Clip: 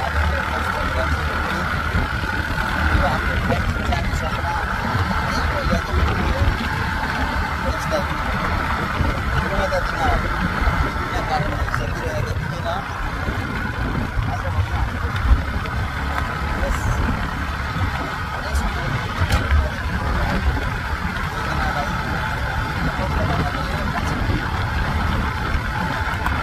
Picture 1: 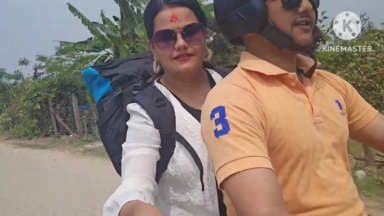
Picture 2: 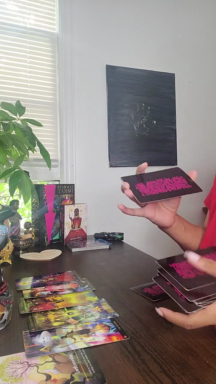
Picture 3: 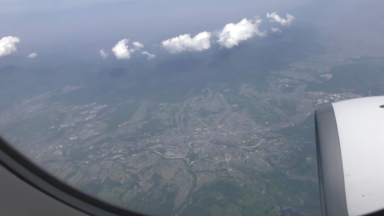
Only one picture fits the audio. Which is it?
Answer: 1